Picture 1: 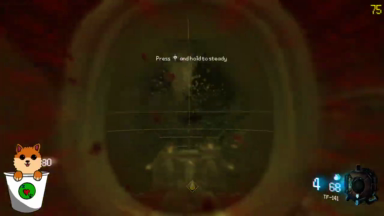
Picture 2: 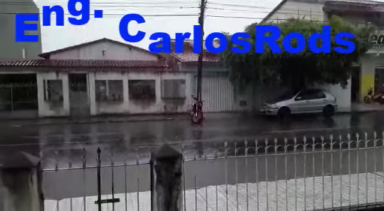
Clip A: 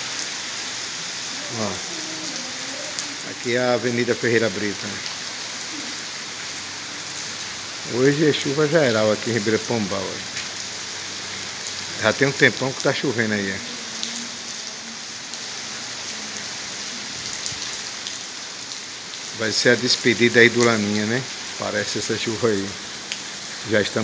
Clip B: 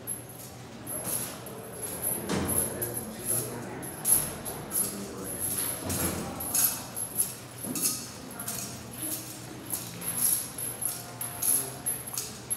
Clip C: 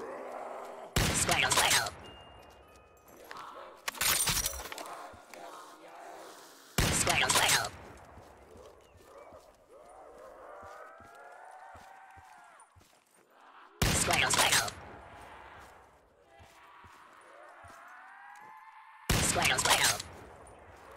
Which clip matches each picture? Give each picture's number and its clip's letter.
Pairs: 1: C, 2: A